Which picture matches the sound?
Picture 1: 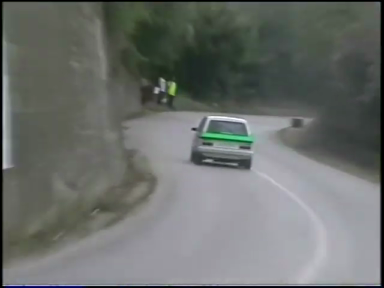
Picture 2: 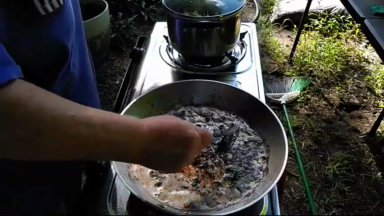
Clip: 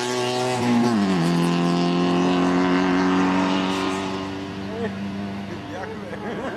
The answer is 1